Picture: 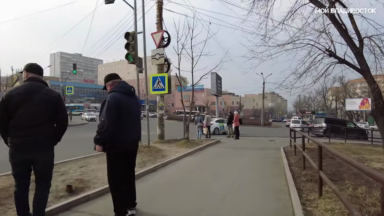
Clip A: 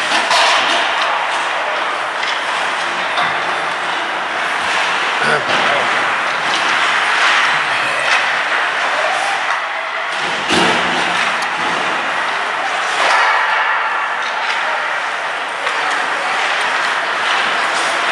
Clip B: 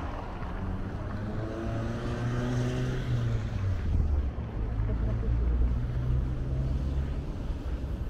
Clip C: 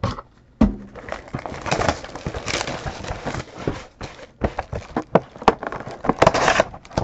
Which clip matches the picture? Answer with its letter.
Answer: B